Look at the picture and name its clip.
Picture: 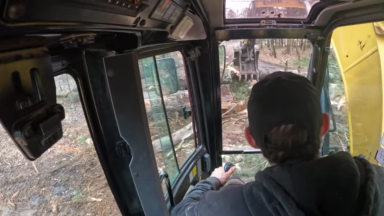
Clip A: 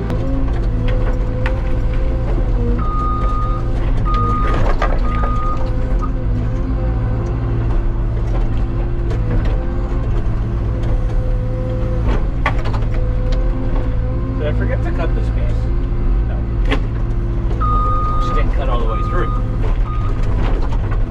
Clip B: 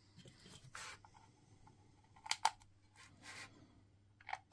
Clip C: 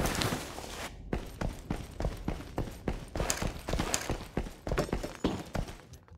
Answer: A